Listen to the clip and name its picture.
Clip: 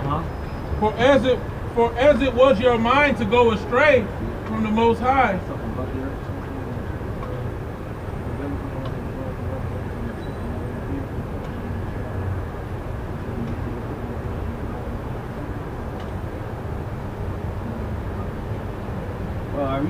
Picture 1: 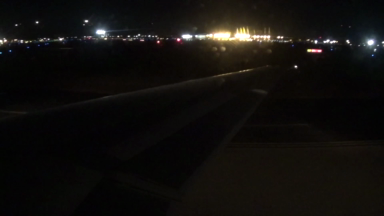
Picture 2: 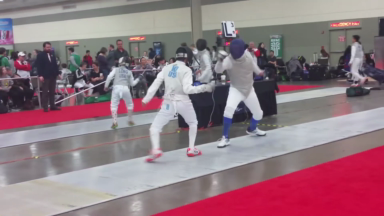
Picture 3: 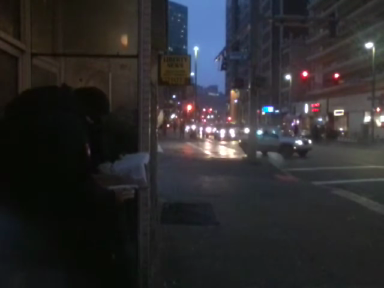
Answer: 3